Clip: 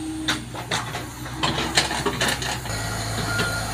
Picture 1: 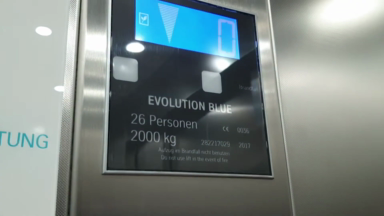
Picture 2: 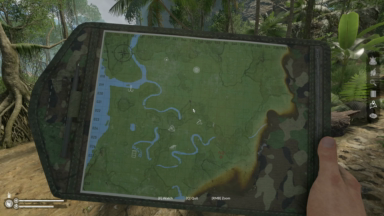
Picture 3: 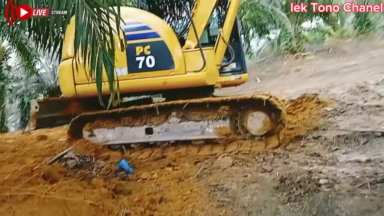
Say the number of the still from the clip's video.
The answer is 3